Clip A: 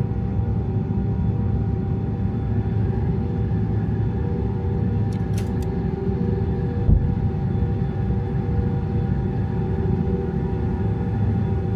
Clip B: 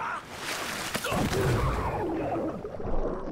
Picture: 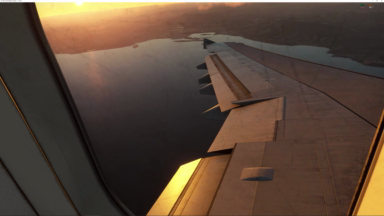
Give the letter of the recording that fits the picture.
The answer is A